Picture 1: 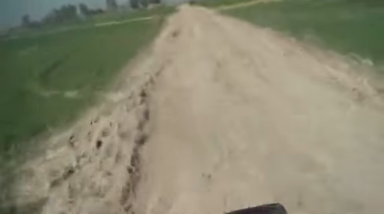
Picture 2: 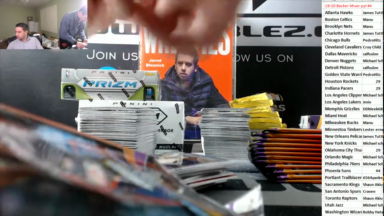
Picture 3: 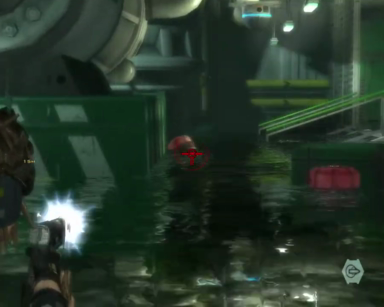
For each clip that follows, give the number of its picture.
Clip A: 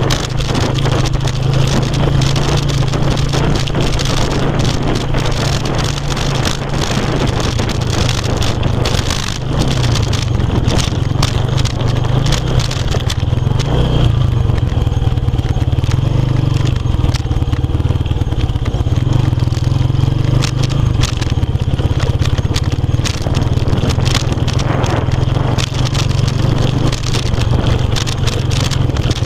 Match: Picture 1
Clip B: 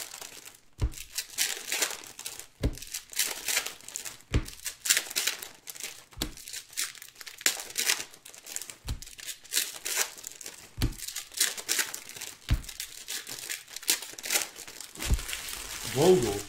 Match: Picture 2